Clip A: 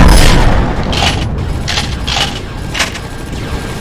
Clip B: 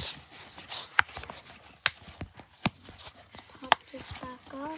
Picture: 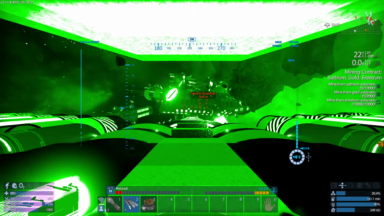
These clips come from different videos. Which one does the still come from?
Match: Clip A